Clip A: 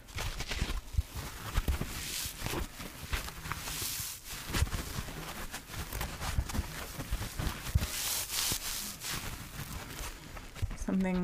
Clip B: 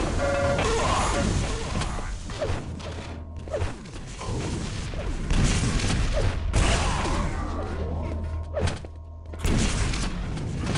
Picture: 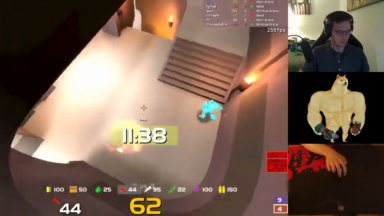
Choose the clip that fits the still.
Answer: B